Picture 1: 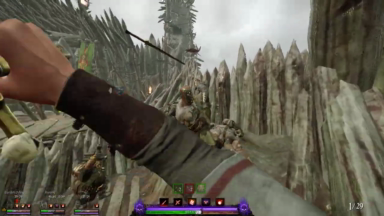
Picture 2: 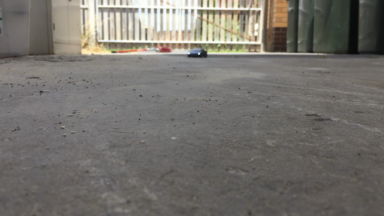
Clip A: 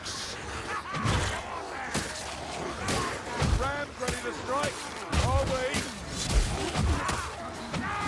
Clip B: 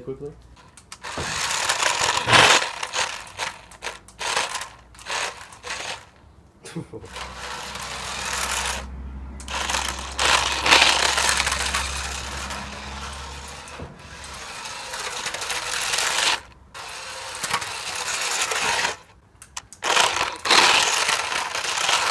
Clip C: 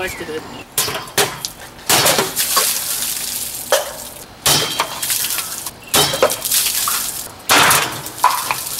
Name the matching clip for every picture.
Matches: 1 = A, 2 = B